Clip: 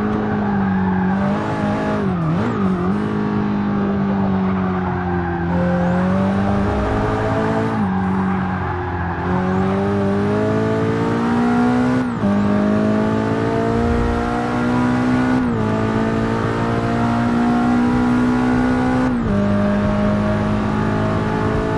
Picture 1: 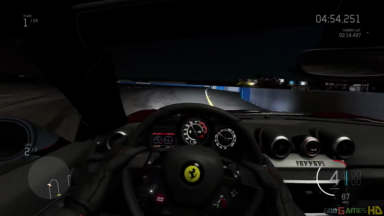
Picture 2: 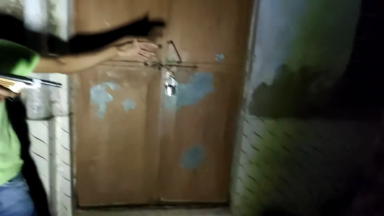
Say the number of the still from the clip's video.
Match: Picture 1